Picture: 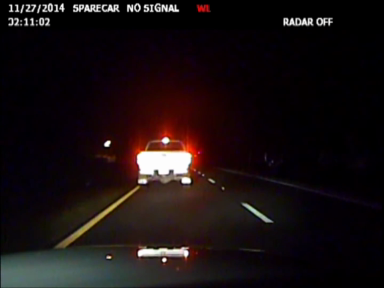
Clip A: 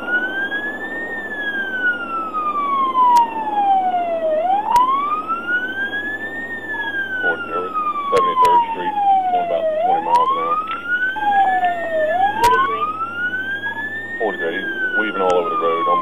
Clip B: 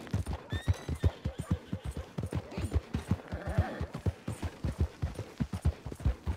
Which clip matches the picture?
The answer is A